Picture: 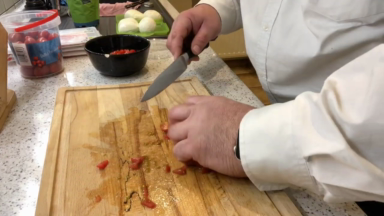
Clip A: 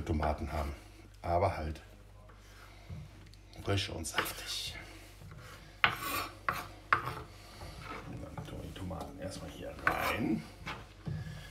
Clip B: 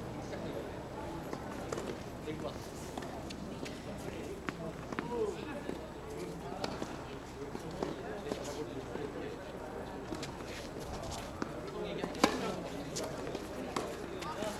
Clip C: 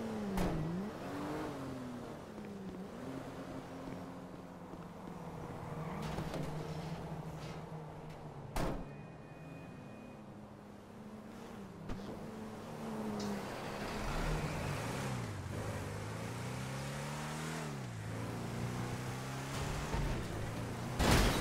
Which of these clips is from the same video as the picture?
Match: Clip A